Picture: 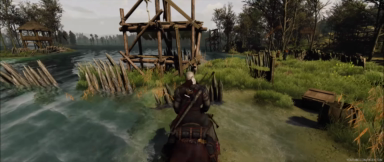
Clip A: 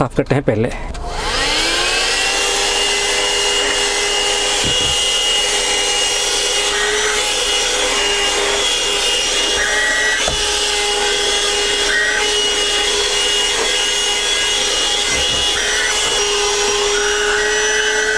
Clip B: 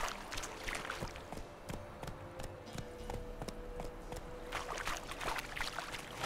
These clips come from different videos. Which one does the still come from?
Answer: B